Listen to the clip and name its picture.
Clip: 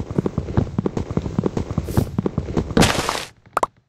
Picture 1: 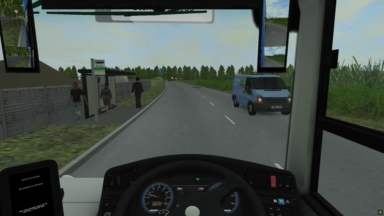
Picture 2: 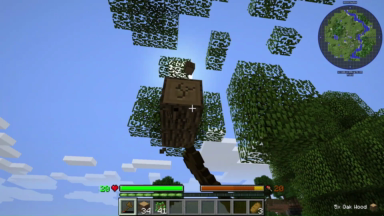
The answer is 2